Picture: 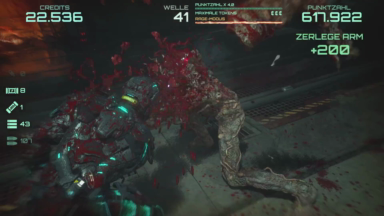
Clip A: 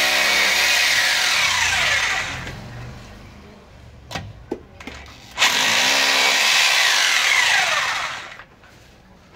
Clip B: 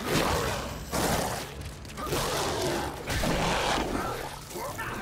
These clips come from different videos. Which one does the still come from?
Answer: B